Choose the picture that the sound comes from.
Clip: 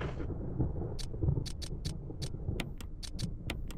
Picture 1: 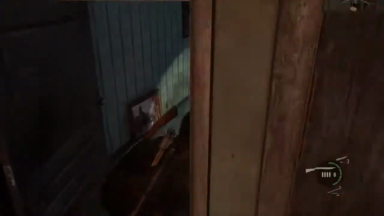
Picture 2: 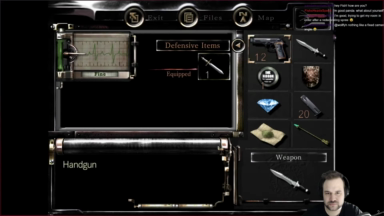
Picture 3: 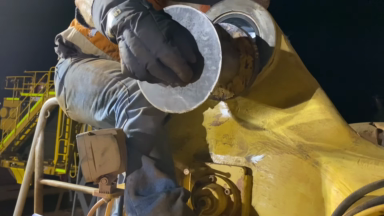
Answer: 2